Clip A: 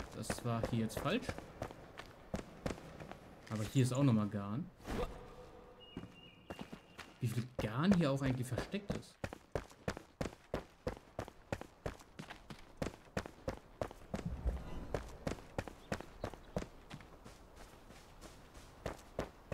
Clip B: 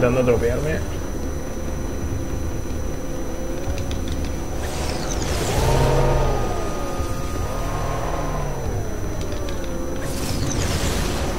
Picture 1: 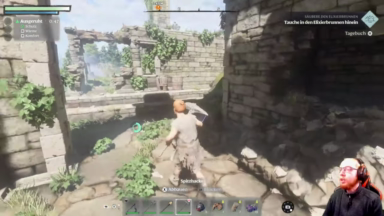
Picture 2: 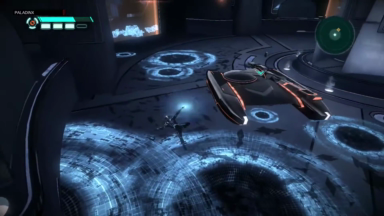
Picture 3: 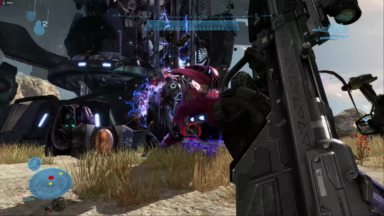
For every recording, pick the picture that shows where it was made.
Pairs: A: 1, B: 2